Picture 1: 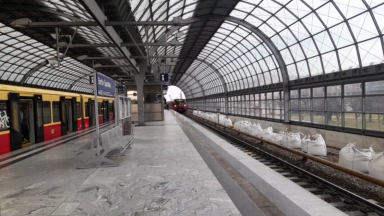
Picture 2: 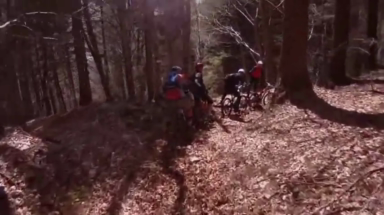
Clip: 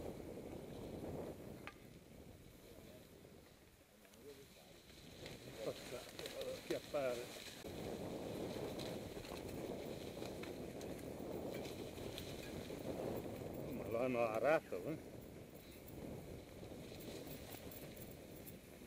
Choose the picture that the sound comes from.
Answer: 2